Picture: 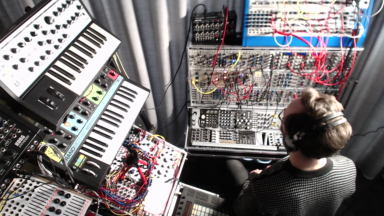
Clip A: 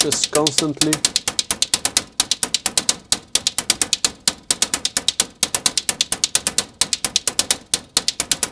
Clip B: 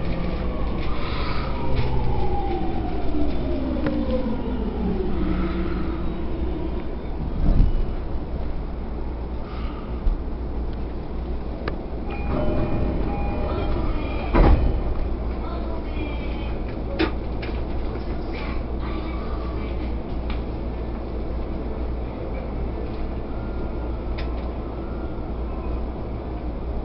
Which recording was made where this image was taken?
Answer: A